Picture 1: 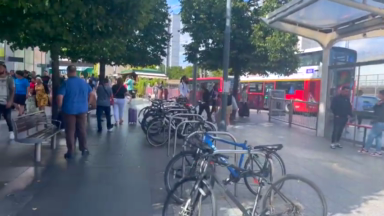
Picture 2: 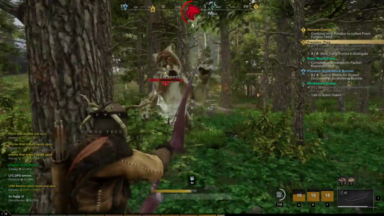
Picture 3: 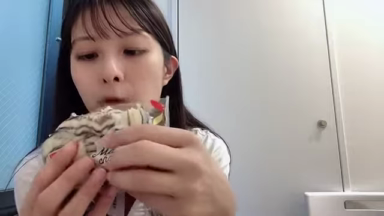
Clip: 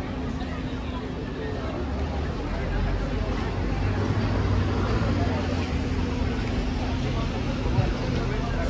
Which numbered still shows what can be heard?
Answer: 1